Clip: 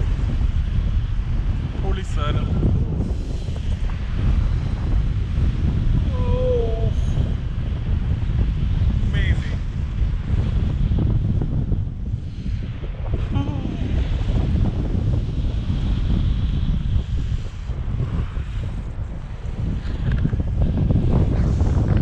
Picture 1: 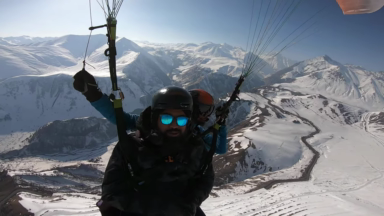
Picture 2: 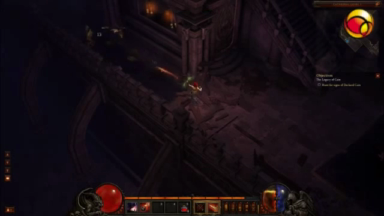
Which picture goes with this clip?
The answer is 1